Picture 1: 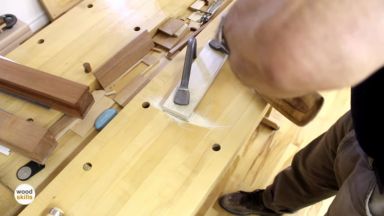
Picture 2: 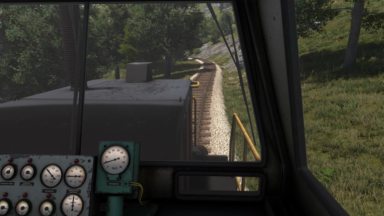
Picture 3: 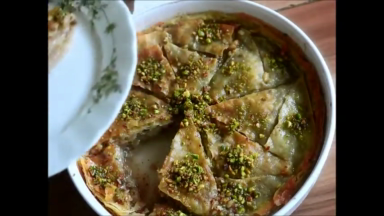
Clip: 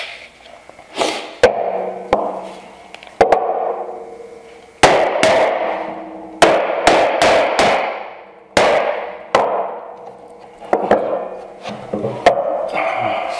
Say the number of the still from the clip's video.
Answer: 1